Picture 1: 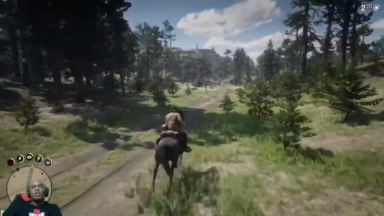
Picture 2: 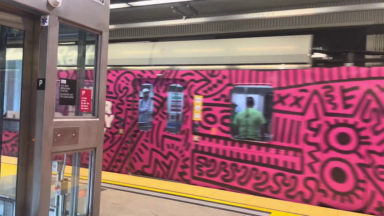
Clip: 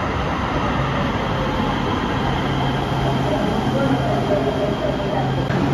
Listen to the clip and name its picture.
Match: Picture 2